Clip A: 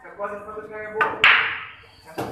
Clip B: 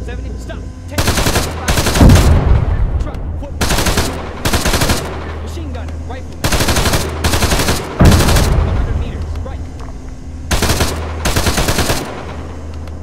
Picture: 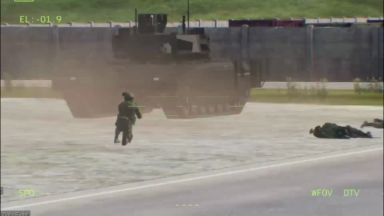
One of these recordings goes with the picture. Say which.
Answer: B